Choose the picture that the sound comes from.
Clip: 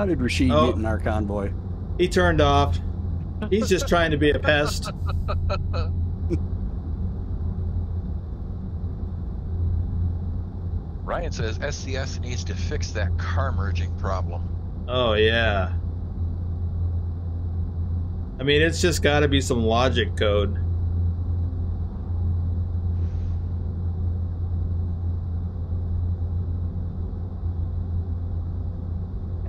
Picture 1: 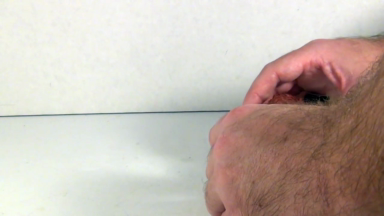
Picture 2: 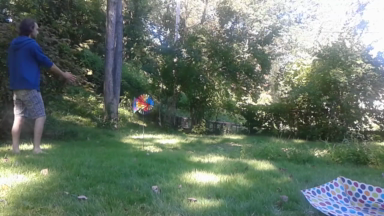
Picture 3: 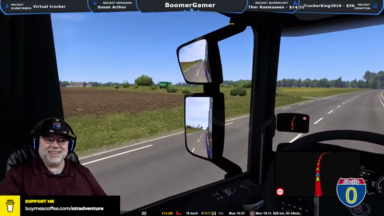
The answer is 3